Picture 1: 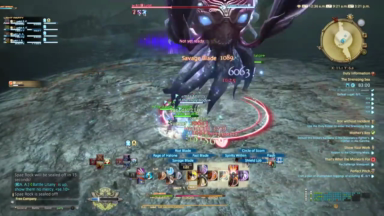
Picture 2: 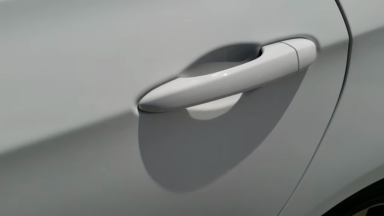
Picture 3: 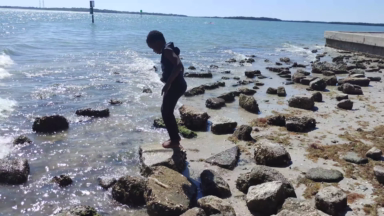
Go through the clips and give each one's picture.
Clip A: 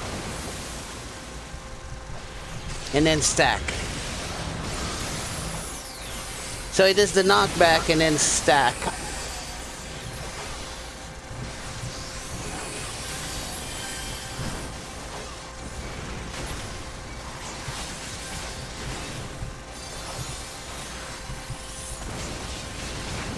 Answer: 1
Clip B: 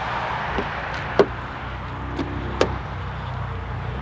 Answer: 2